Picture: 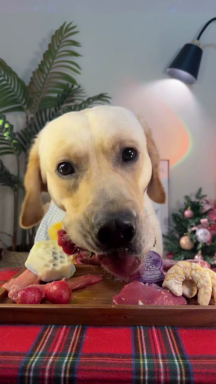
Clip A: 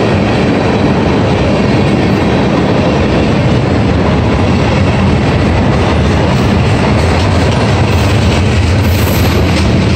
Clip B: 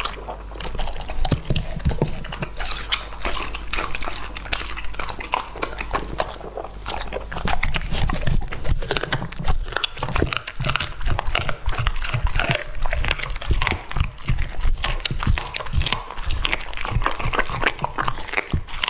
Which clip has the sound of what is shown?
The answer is B